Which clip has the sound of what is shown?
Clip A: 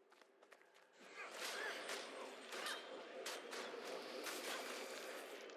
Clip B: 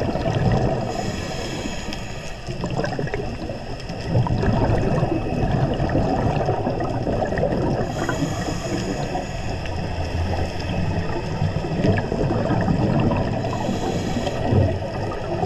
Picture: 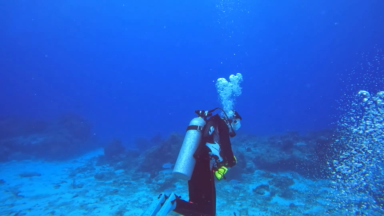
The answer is B